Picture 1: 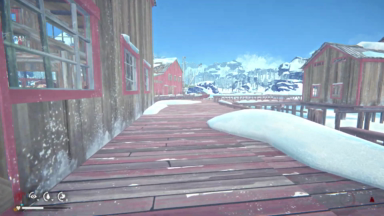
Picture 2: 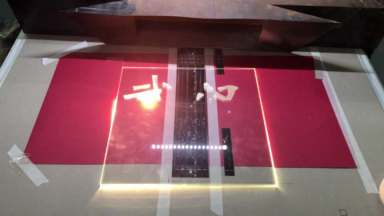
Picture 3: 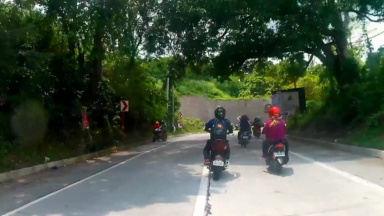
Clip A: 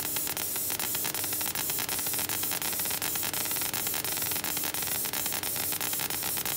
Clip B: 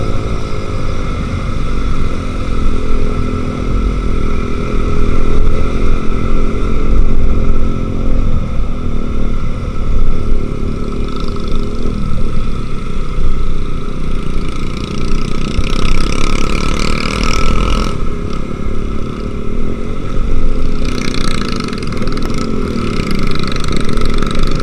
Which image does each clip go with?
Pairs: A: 2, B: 3